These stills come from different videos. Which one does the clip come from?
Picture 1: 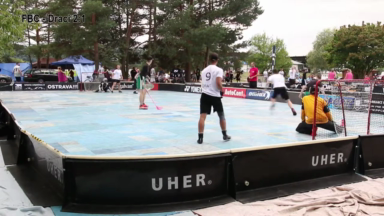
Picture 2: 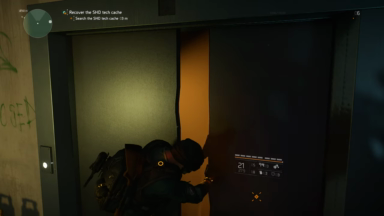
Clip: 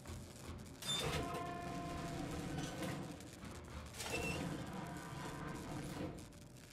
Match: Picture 2